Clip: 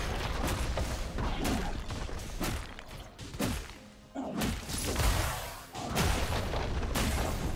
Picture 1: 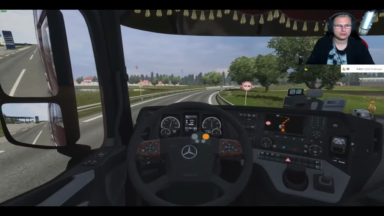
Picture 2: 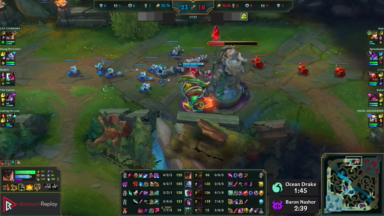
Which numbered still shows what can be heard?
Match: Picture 2